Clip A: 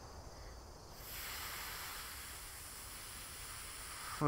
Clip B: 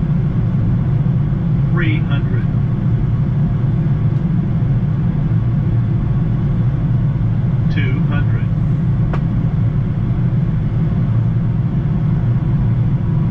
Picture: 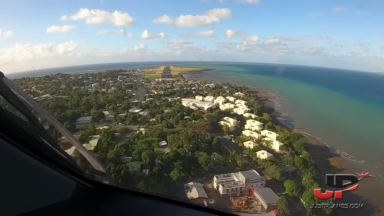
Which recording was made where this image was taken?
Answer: B